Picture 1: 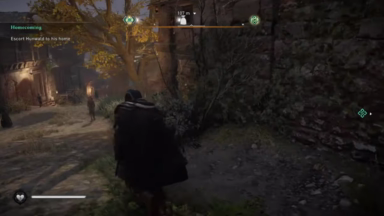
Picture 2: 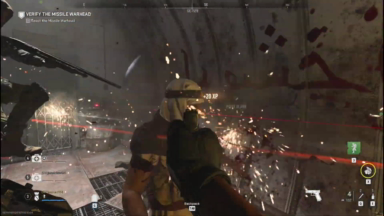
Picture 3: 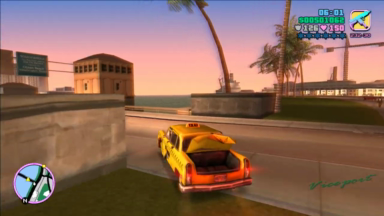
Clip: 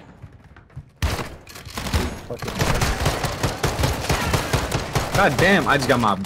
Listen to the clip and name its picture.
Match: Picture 2